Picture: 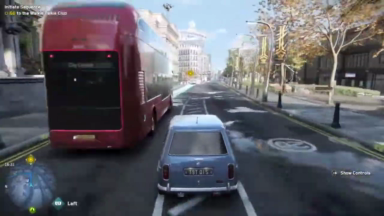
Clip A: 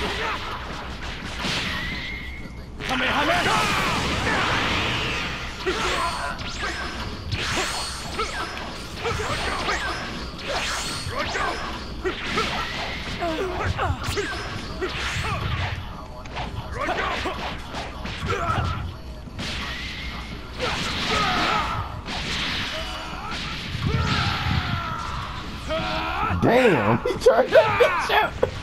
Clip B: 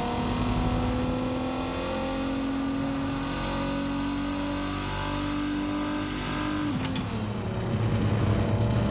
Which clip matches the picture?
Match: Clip B